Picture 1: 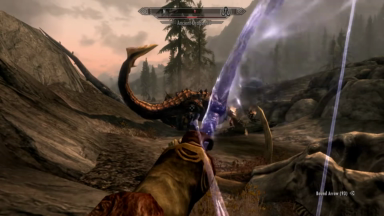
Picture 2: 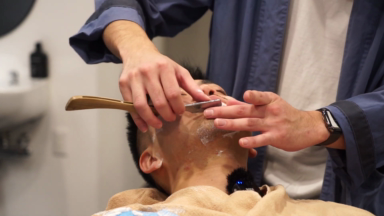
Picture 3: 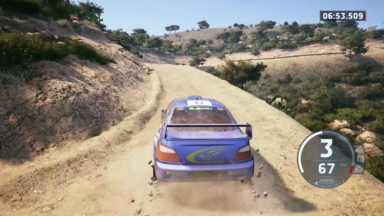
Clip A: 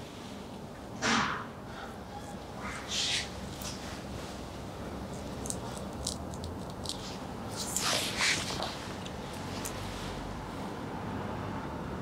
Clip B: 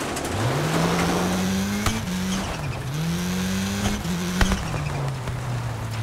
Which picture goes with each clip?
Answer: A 2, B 3